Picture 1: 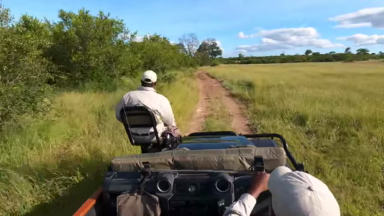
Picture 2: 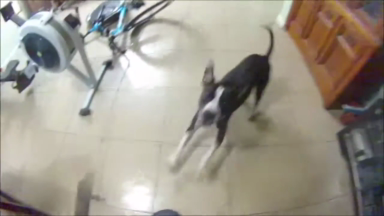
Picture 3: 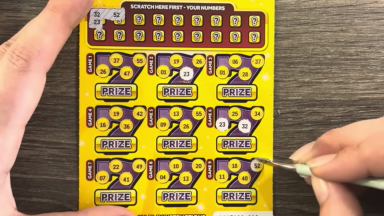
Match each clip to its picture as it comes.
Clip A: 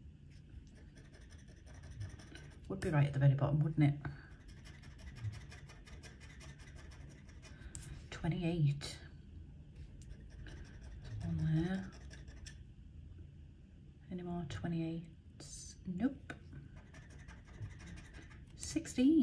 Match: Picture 3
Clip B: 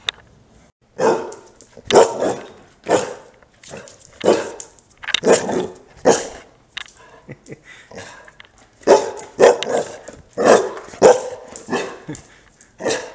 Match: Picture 2